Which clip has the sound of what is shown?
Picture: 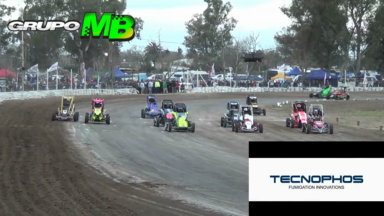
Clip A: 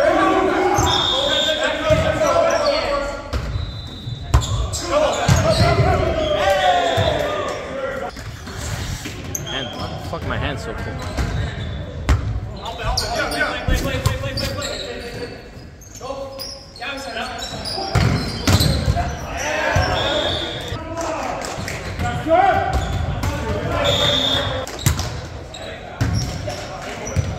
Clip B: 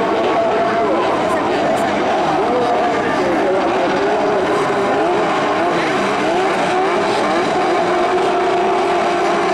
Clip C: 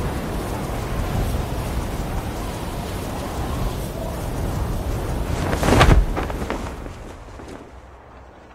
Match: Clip B